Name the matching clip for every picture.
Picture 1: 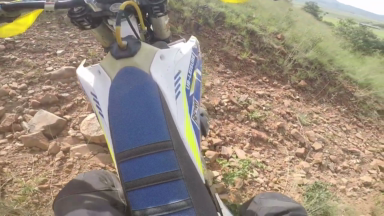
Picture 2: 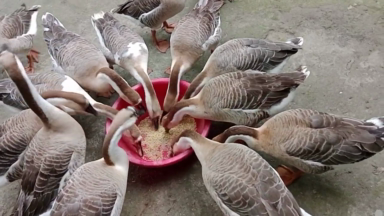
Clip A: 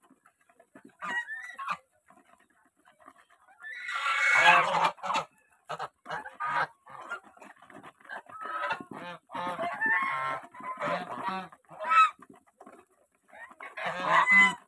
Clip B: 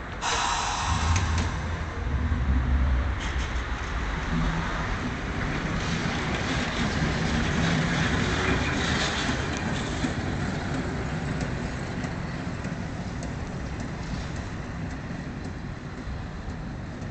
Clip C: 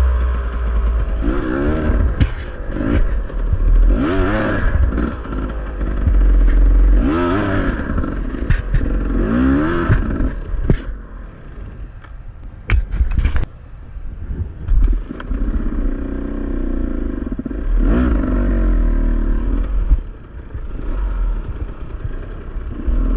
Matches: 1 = C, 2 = A